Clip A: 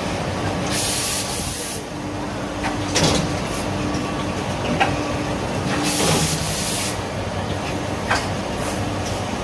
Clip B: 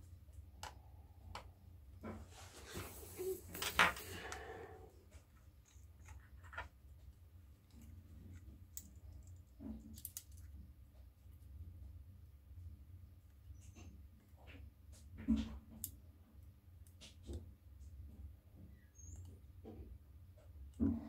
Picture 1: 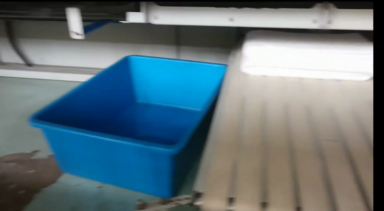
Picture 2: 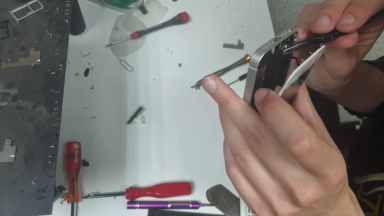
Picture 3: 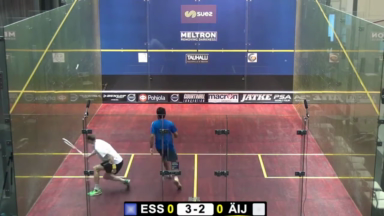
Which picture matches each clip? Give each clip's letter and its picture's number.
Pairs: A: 1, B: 2